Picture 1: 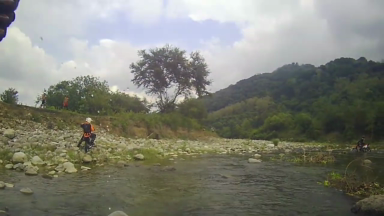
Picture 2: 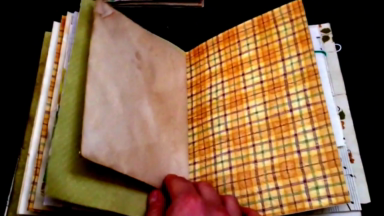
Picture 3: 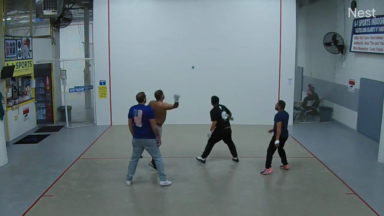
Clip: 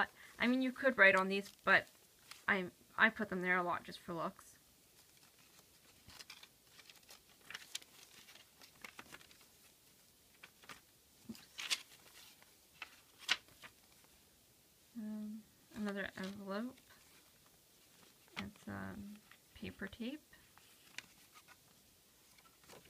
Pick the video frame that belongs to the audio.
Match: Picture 2